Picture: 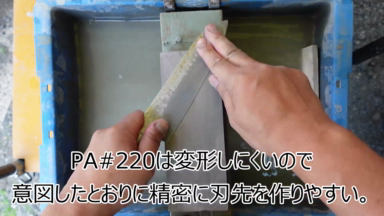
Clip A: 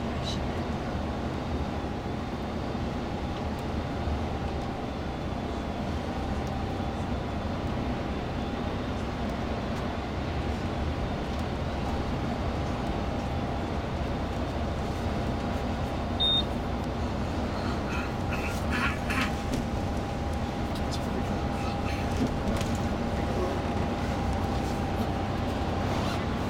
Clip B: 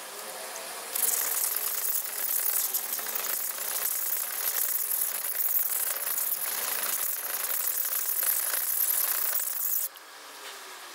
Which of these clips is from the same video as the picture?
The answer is B